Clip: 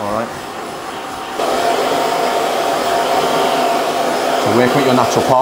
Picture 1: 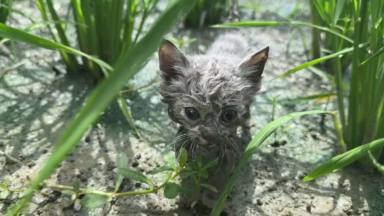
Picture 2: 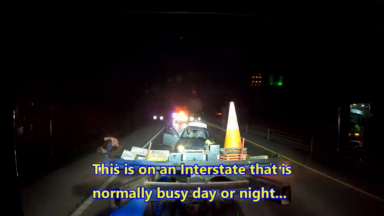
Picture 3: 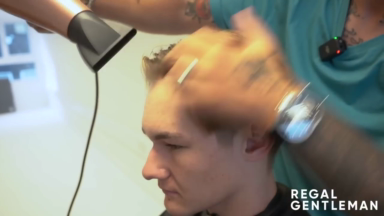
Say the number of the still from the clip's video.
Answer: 3